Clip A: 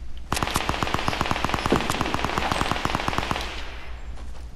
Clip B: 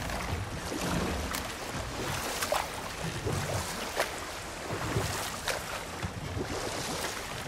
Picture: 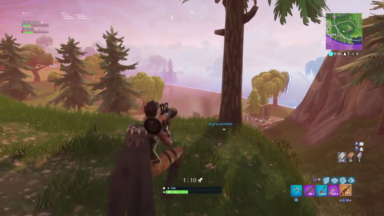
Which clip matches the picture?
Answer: A